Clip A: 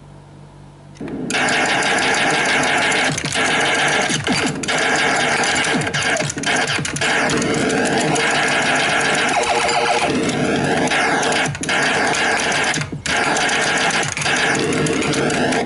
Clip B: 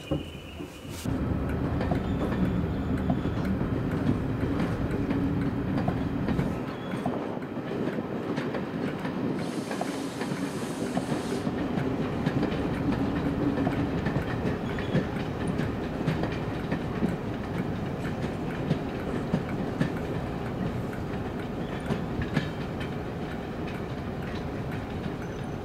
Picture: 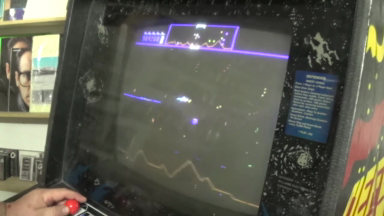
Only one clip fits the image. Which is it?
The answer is A